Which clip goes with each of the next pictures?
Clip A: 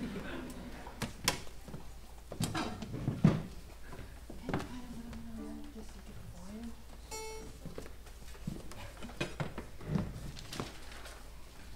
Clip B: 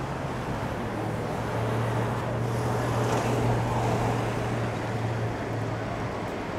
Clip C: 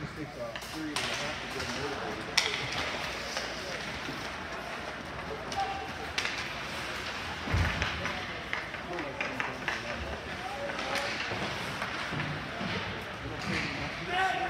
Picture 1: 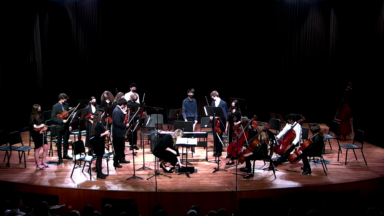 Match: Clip A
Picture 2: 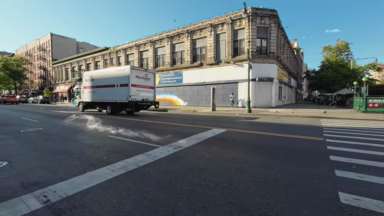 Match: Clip B